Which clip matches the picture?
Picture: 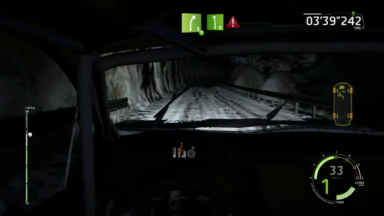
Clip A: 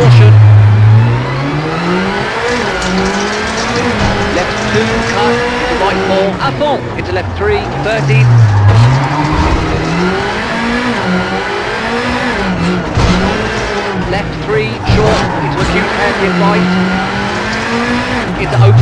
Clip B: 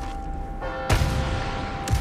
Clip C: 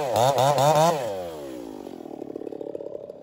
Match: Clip A